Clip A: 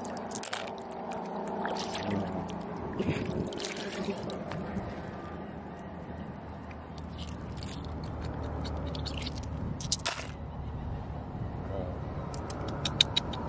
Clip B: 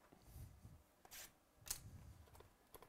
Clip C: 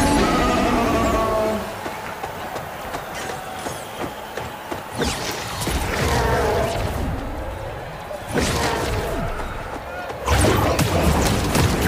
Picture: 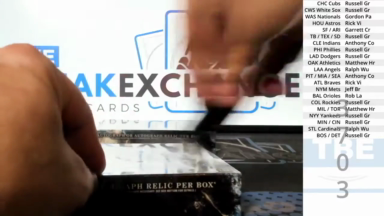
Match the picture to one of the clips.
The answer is B